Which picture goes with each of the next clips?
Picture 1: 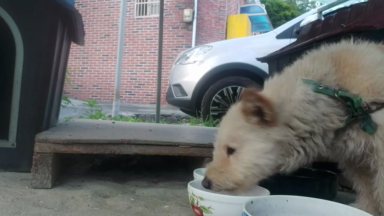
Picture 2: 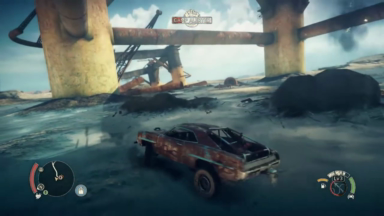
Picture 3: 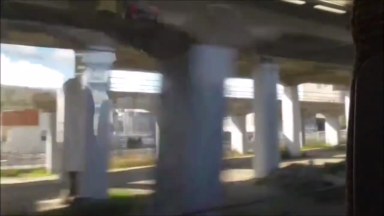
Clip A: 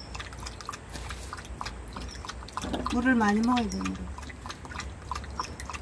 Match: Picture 1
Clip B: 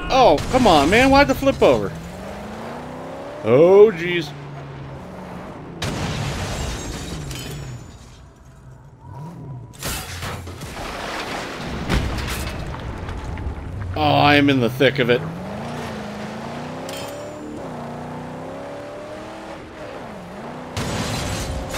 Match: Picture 2